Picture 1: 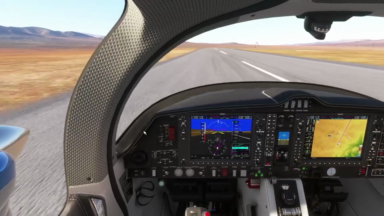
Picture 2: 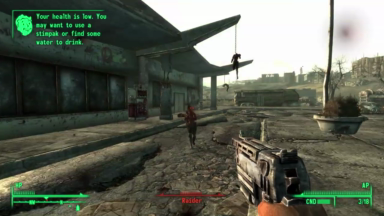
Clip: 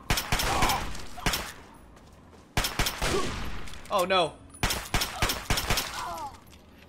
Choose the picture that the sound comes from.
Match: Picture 2